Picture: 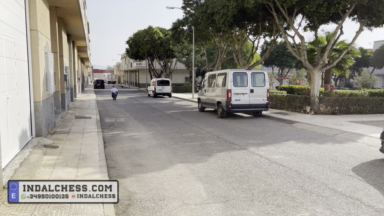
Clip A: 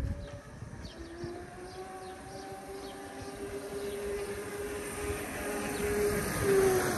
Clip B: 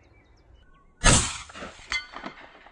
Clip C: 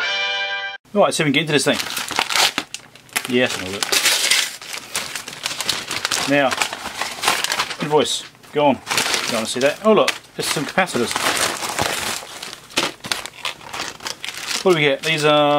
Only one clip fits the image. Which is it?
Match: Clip A